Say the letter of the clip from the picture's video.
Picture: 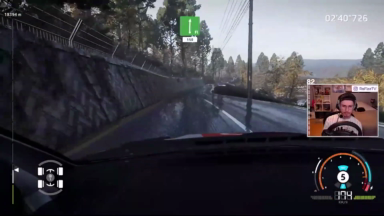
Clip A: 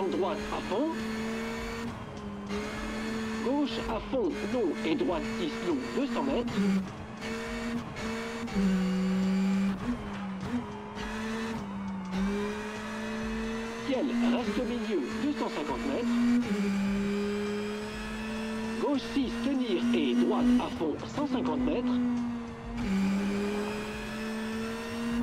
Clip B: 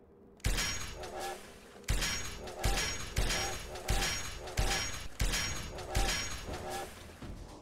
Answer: A